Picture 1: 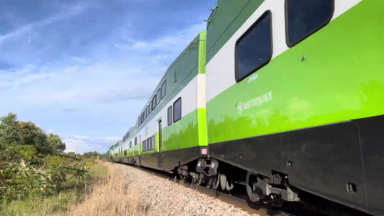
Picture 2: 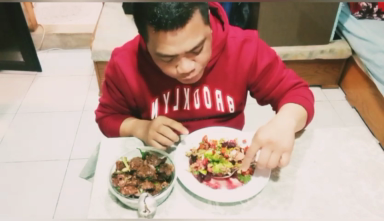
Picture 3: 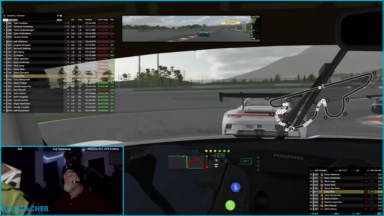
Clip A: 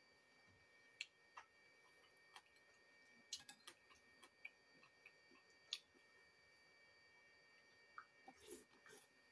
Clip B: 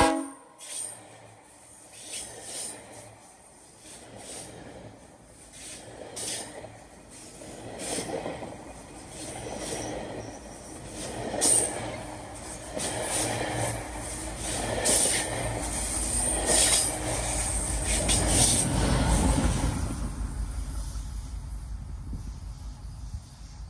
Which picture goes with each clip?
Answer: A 2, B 1